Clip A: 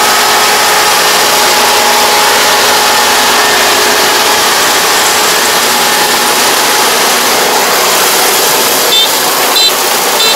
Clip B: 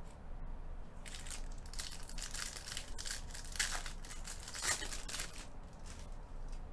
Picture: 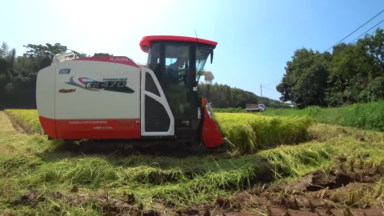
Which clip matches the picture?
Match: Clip A